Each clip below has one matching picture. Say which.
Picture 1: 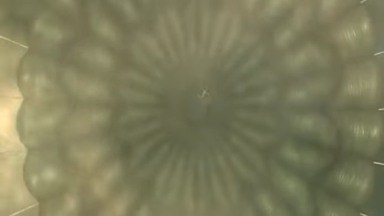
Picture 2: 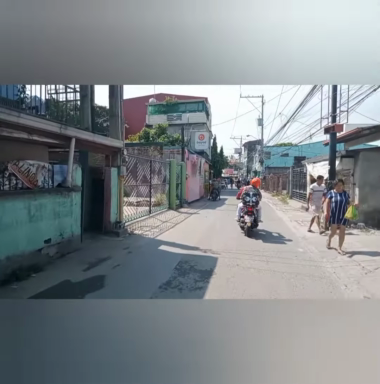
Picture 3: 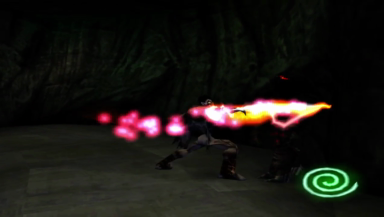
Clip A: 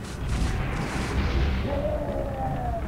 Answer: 3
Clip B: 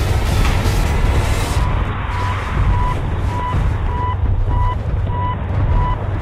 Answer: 1